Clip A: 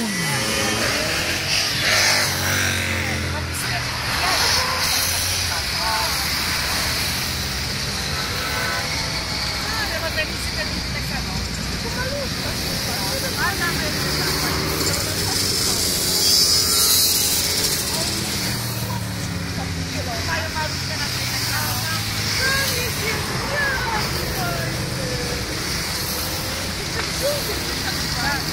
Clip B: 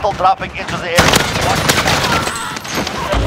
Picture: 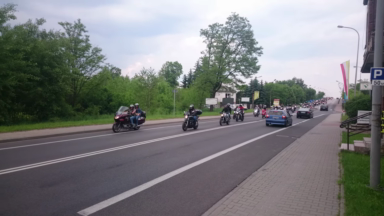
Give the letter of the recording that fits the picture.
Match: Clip A